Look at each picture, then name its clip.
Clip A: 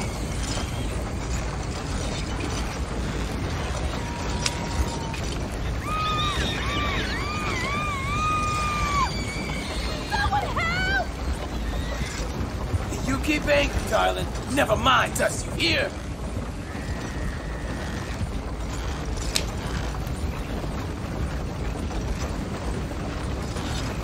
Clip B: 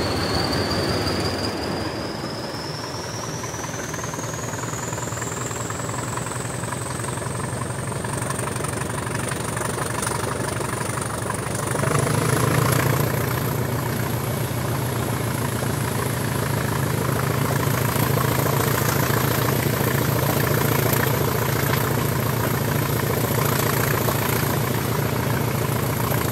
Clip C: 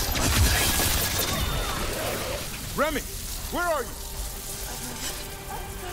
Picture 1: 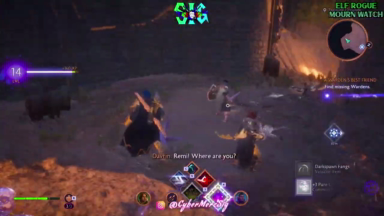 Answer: C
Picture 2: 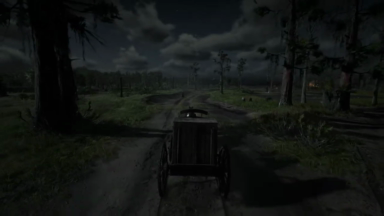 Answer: A